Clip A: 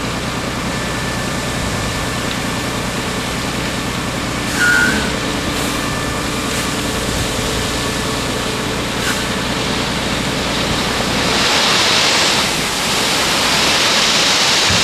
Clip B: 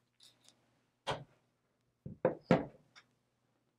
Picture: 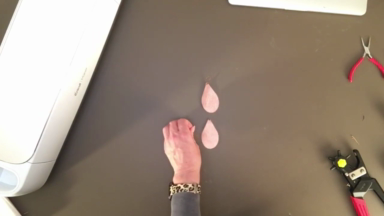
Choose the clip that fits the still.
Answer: B